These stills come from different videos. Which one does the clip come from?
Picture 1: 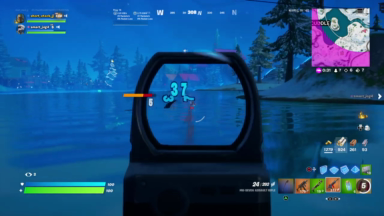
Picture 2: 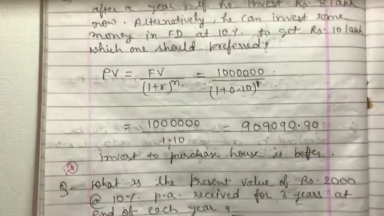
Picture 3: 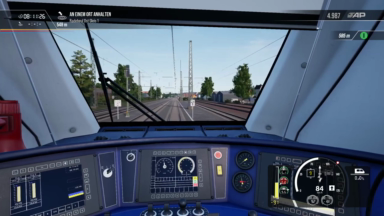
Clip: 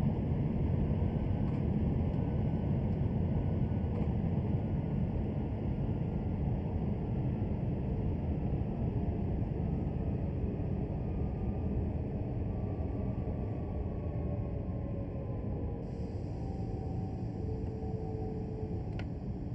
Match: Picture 3